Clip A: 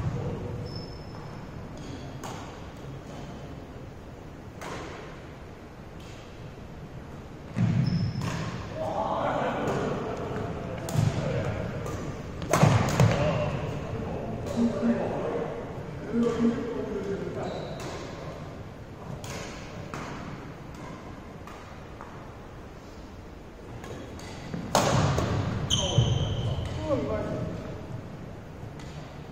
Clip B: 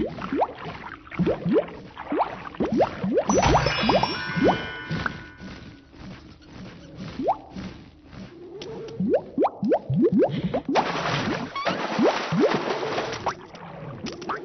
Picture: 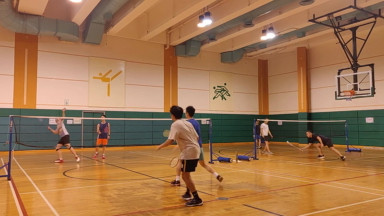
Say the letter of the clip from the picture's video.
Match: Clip A